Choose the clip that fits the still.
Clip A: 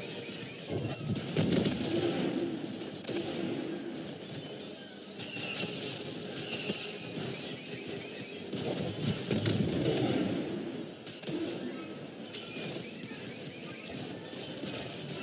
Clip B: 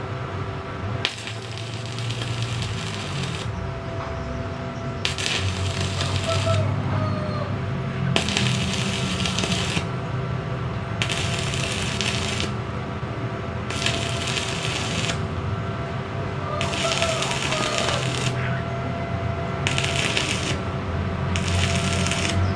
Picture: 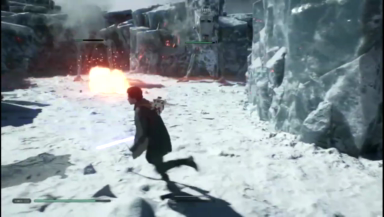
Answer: A